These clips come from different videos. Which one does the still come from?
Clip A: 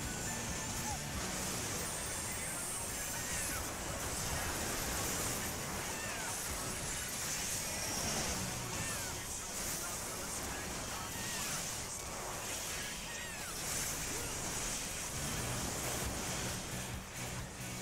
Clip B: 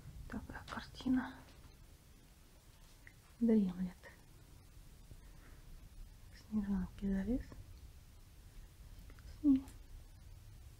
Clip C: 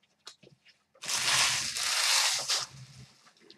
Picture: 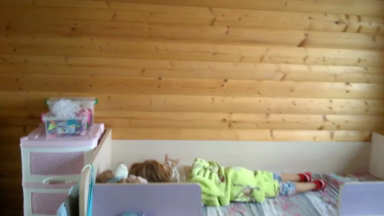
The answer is B